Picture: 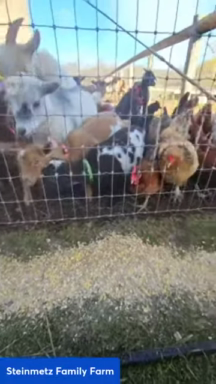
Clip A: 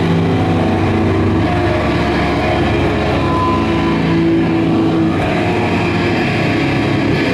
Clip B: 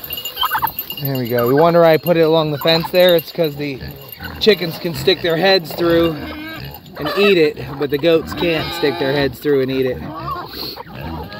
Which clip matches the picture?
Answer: B